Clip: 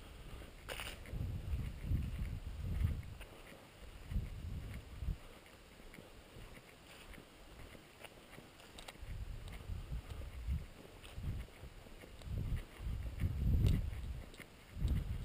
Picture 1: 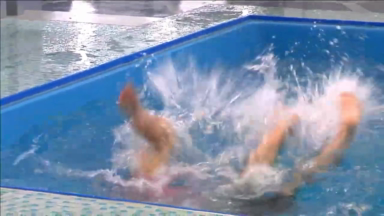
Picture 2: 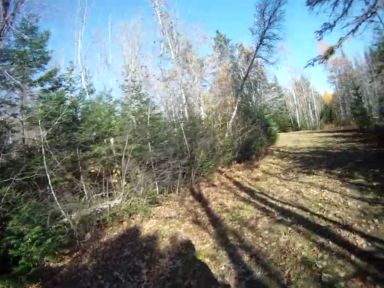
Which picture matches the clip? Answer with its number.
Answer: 2